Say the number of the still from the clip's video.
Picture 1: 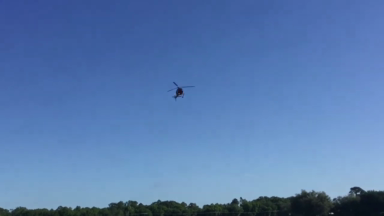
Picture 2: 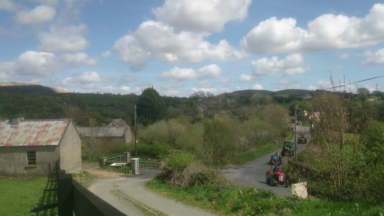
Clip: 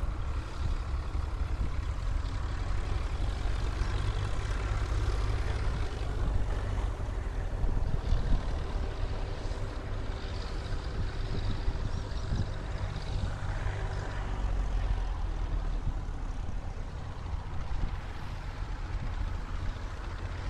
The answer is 2